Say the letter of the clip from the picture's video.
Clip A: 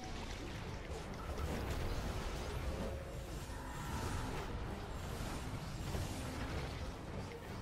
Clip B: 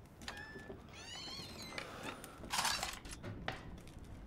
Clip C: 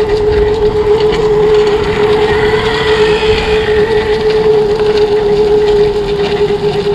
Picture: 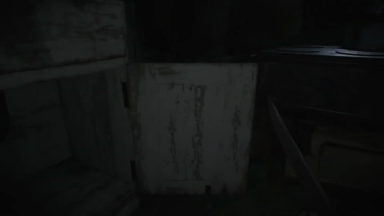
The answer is B